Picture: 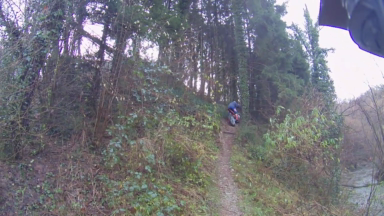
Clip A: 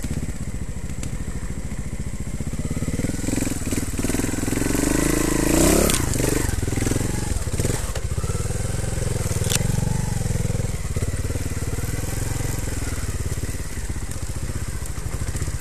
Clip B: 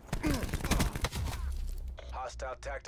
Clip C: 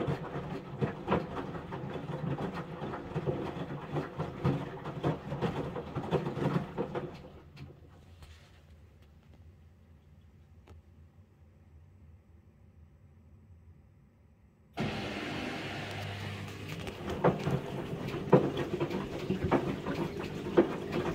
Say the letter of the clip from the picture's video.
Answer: A